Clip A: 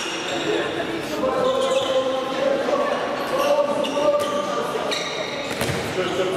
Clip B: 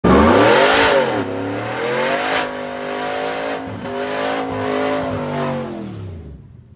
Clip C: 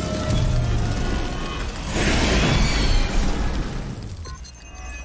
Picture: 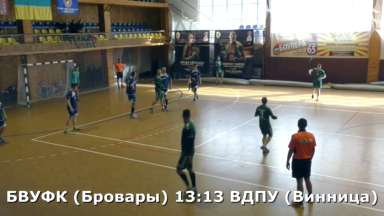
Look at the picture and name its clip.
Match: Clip A